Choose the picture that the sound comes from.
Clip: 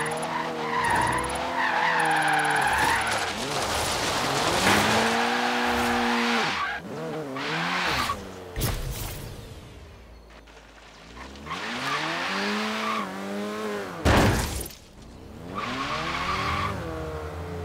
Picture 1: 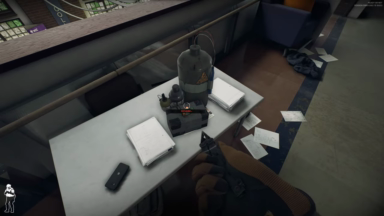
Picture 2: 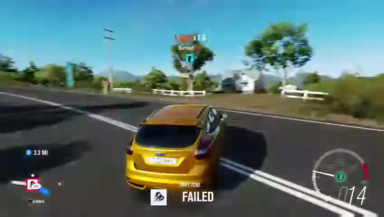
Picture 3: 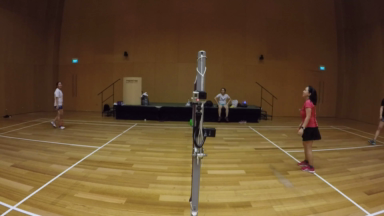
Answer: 2